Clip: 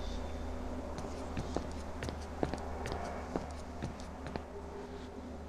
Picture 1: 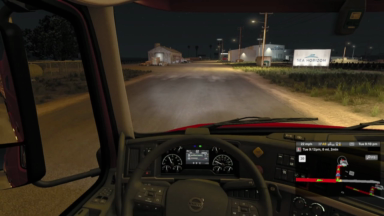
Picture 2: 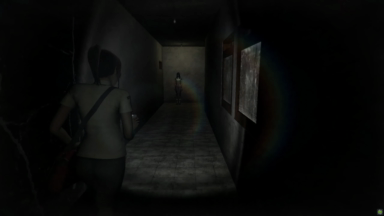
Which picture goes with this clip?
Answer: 2